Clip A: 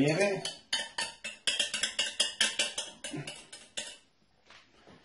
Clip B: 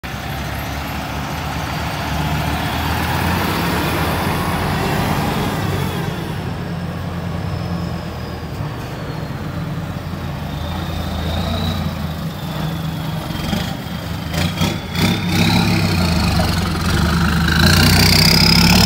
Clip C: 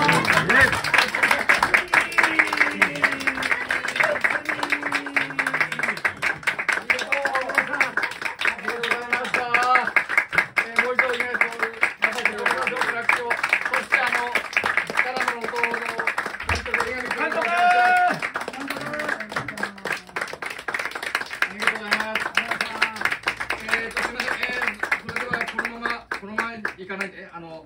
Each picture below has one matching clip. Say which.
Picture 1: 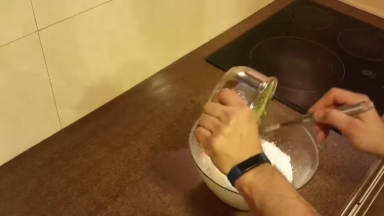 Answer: A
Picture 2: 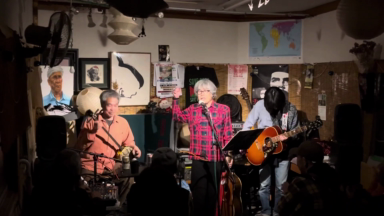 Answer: C